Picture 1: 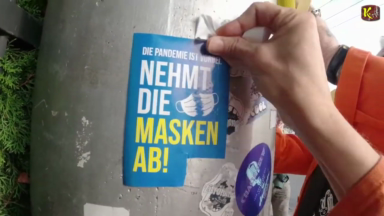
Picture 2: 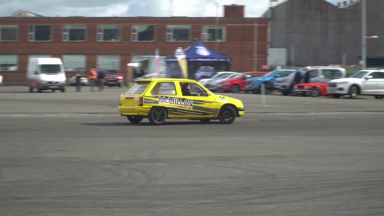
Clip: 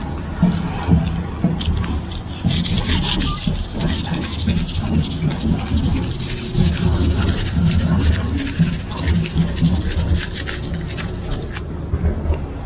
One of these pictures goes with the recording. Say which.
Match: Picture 1